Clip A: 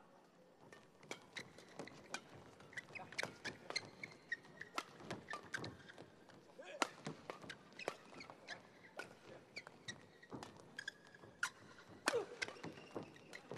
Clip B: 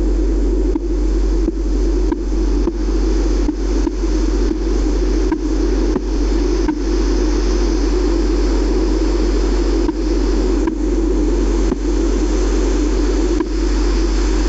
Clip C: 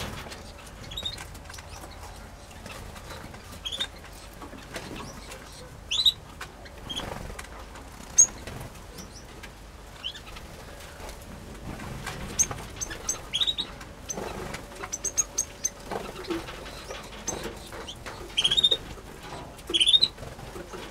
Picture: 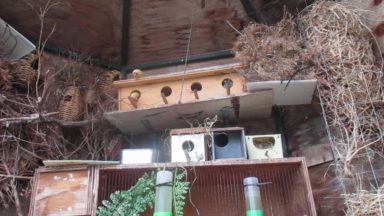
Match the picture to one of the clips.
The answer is C